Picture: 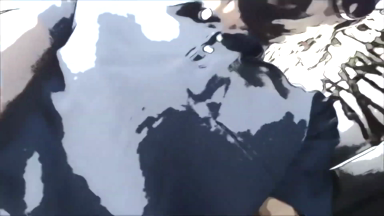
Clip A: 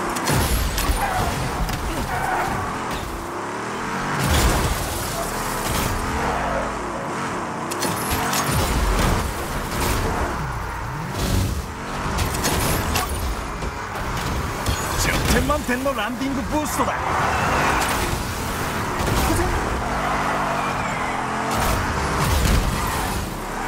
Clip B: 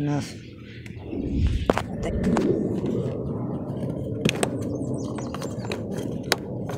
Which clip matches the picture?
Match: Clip B